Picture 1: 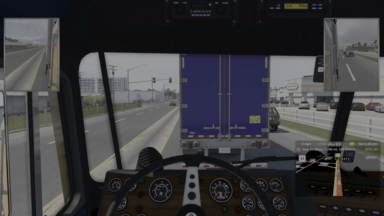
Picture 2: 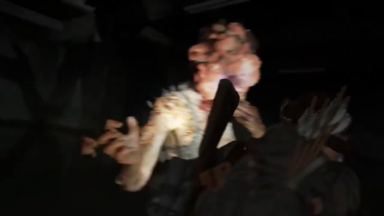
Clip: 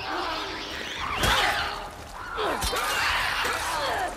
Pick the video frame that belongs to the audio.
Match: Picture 2